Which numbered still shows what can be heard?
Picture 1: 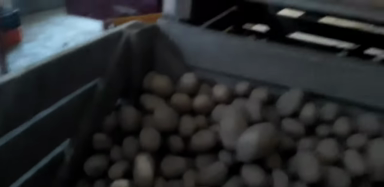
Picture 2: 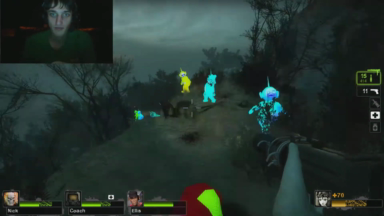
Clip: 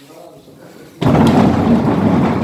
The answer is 1